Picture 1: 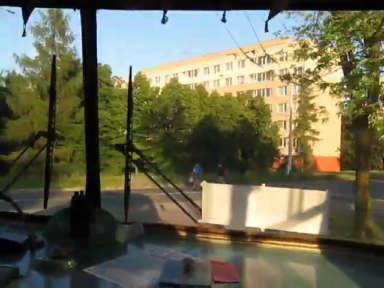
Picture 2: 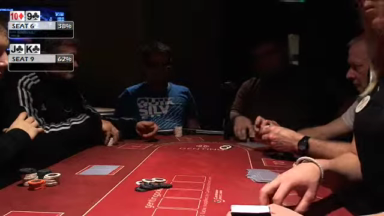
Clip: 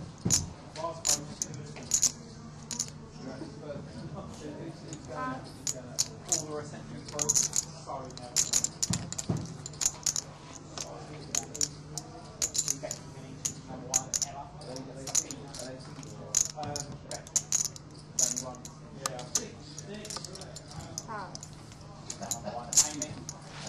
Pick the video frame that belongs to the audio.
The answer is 2